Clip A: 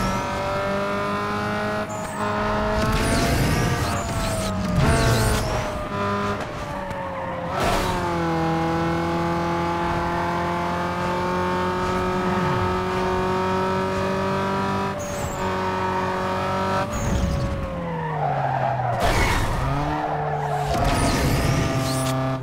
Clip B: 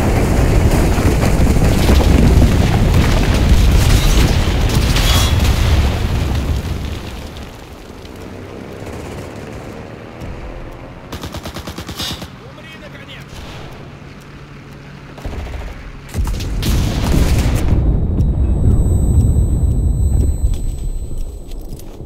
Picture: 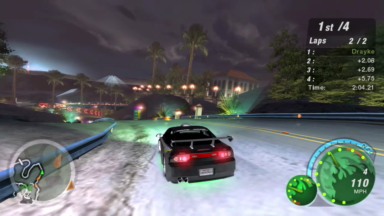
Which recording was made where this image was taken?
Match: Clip A